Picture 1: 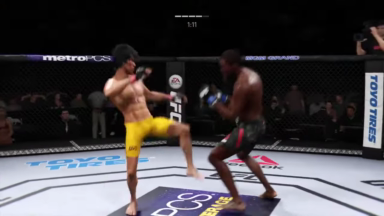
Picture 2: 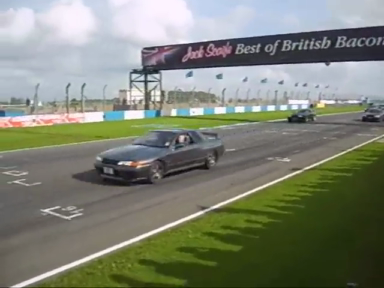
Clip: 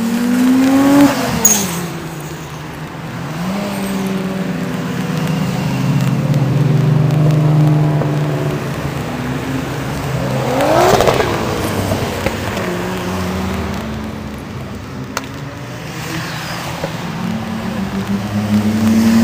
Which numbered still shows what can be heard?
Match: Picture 2